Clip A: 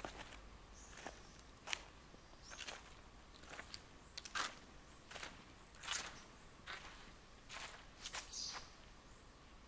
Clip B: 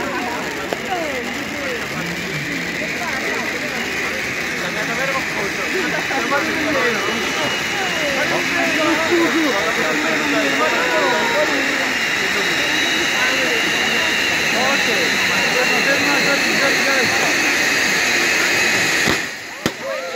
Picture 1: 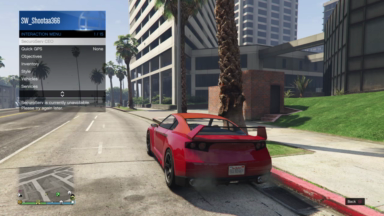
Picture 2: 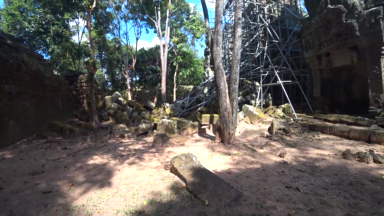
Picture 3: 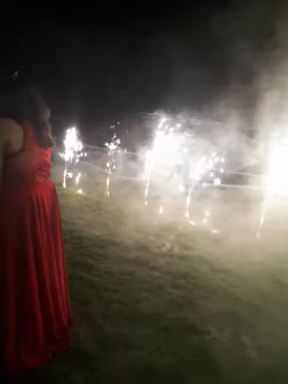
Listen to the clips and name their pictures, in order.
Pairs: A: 2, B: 3